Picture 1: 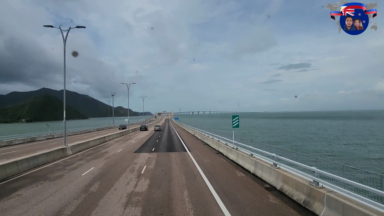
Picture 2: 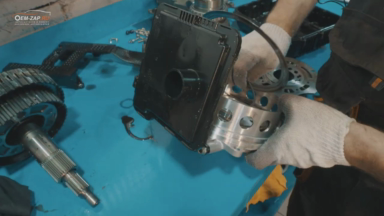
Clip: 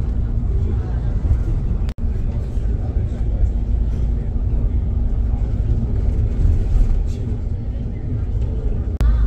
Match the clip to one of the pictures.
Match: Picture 1